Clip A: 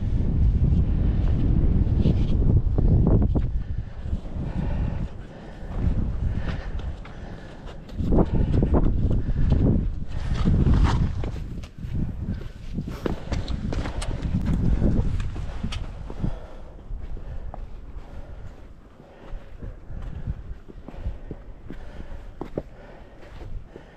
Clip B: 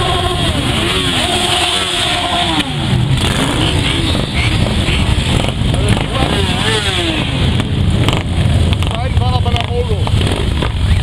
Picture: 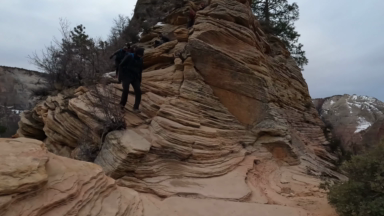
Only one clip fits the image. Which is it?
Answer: A